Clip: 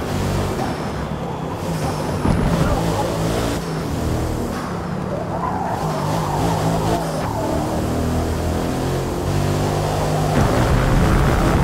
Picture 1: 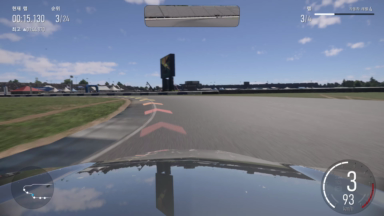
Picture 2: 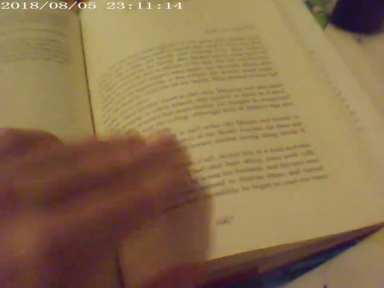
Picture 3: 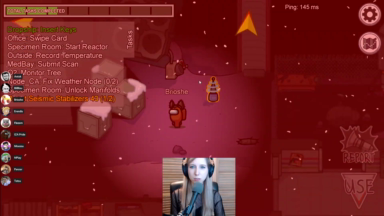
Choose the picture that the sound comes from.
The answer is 1